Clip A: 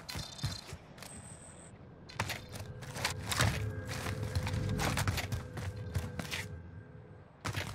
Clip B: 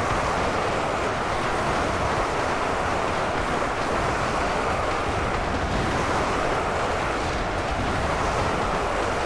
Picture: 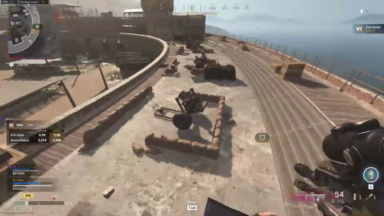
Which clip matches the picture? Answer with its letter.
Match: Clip A